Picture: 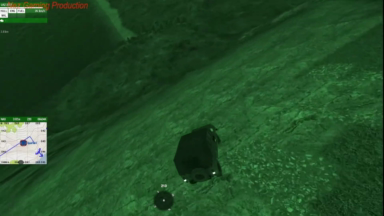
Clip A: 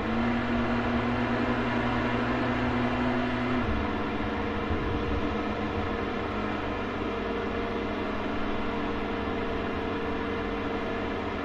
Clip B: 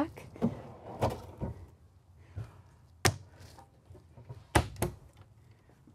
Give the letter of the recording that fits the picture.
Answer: A